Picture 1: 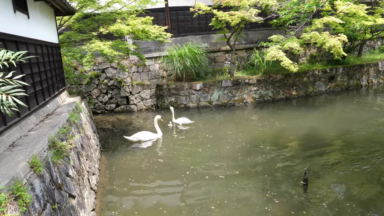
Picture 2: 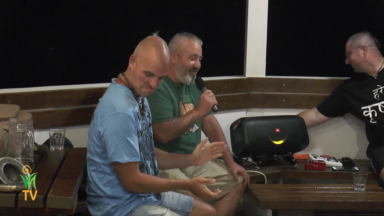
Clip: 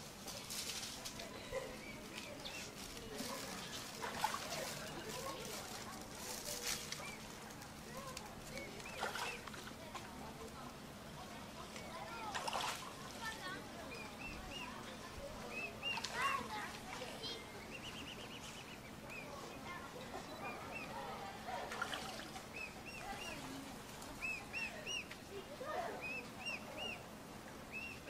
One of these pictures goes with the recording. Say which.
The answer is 1